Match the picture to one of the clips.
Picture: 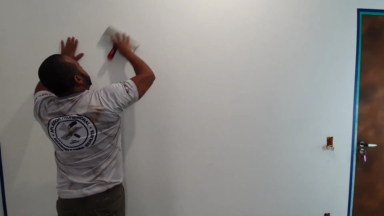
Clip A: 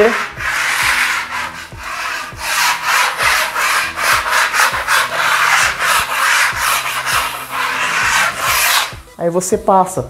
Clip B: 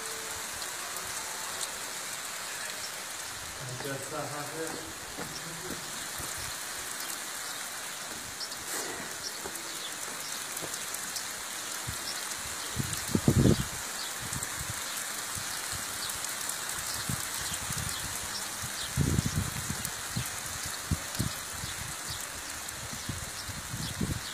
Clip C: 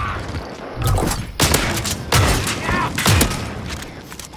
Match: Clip A